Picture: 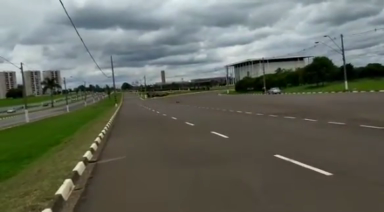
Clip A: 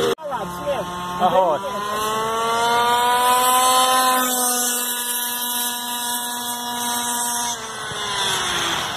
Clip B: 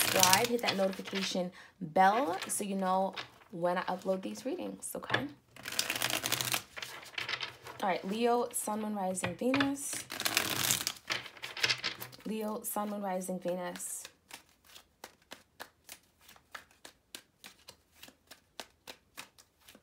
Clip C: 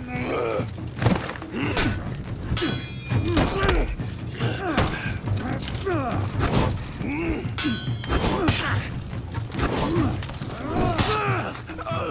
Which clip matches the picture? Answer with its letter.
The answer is A